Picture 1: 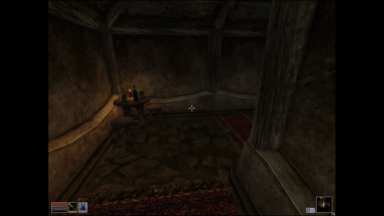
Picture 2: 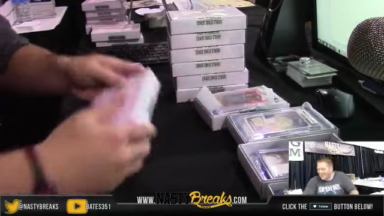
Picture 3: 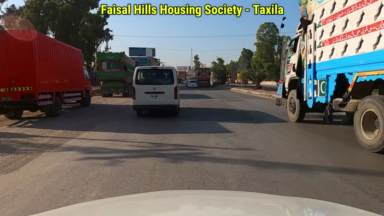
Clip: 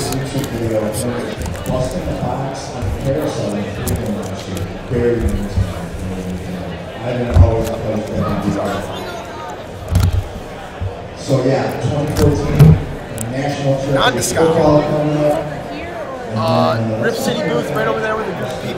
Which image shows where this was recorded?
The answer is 2